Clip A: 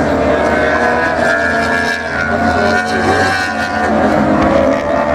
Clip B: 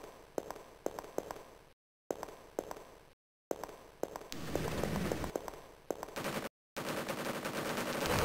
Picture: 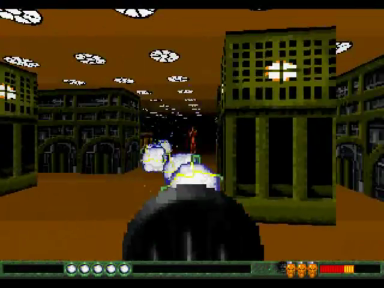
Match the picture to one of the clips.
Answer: B